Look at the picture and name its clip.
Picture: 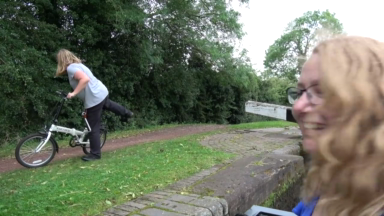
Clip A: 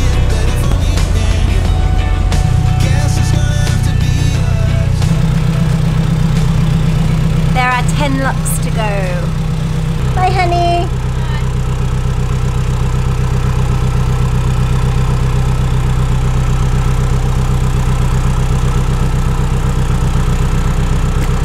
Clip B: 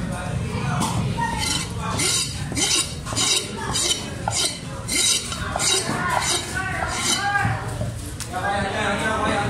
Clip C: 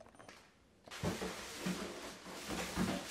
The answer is A